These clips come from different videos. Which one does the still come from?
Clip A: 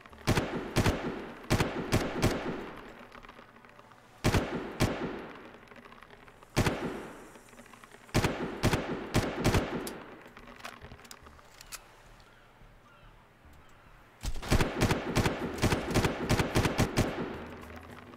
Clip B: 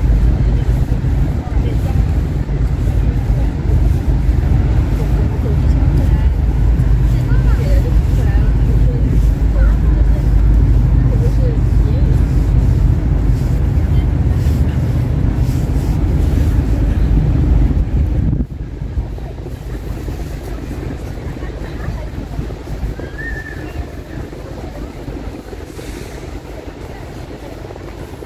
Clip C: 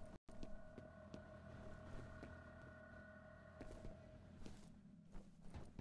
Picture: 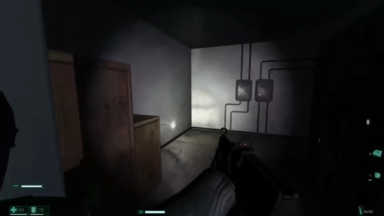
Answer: C